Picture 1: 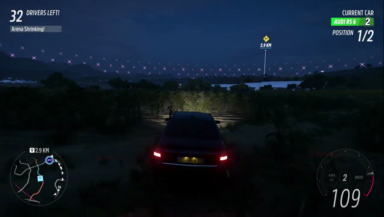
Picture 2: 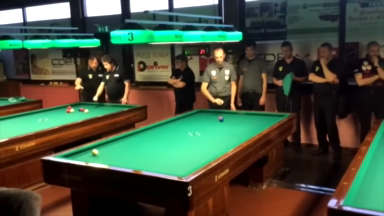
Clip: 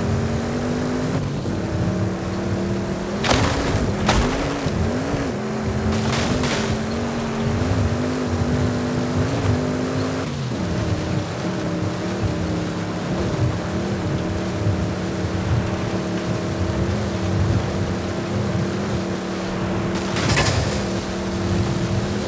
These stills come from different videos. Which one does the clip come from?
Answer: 1